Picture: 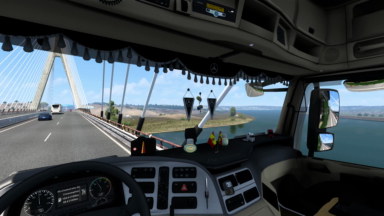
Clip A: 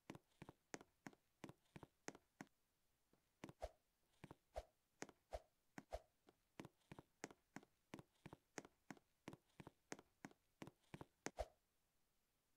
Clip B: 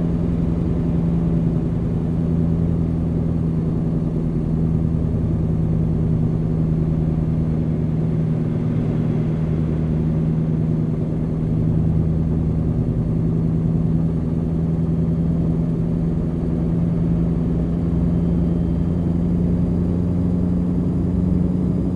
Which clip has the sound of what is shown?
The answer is B